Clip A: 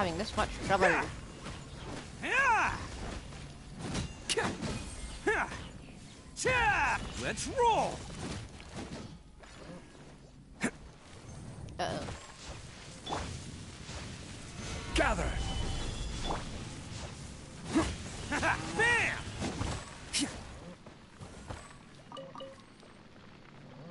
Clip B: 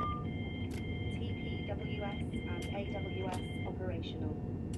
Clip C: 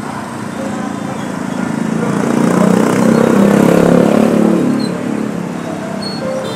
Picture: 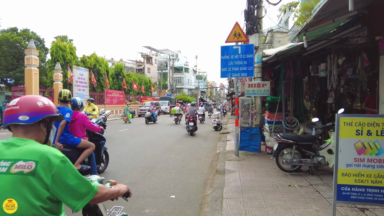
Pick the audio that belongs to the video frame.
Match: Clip C